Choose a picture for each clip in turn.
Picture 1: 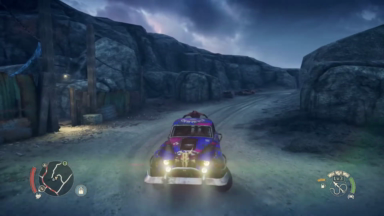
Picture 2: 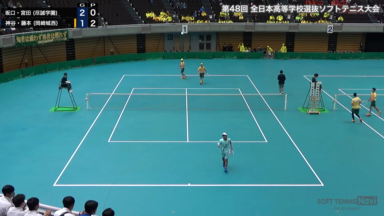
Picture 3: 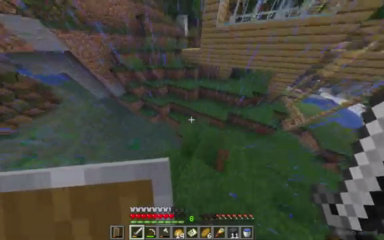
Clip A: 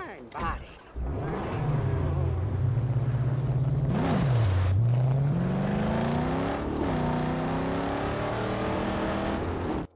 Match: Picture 1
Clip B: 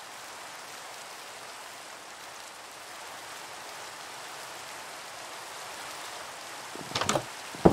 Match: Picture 3